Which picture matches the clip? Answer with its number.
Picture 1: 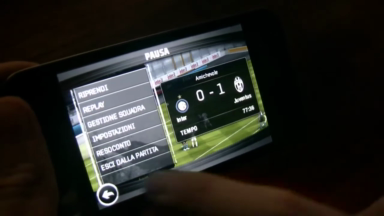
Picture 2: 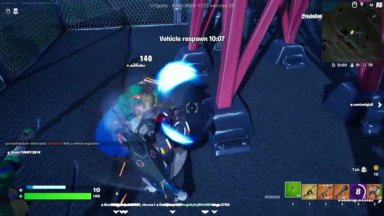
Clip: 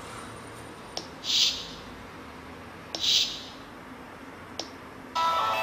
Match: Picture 1